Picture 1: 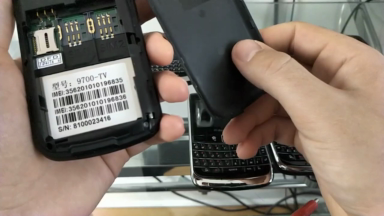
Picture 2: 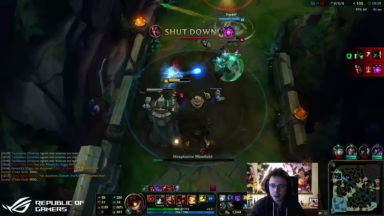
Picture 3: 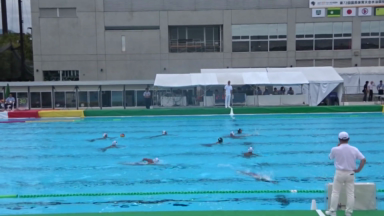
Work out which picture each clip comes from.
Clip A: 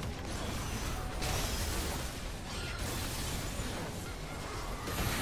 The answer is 2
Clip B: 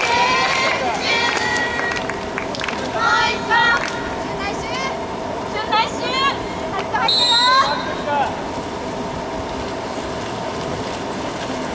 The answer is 3